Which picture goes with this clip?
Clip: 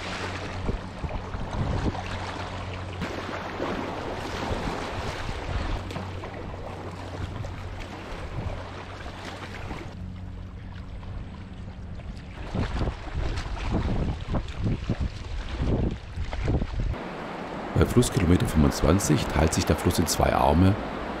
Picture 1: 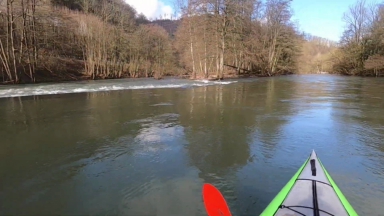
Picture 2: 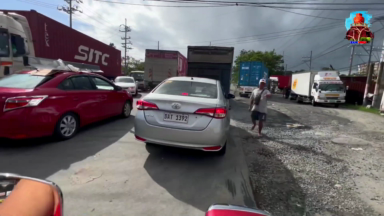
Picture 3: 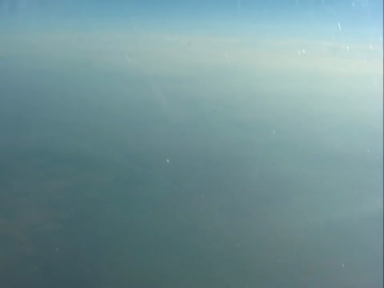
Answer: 1